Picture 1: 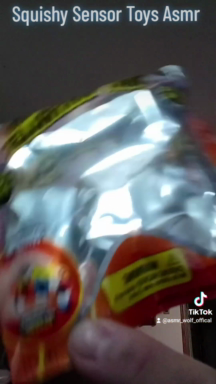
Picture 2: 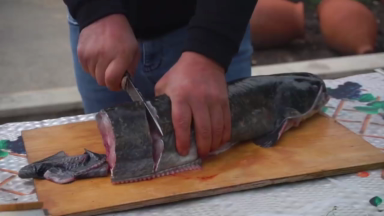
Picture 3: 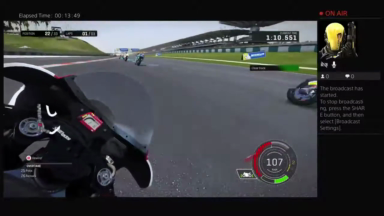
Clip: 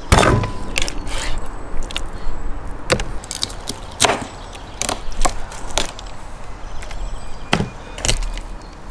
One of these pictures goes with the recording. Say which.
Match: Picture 2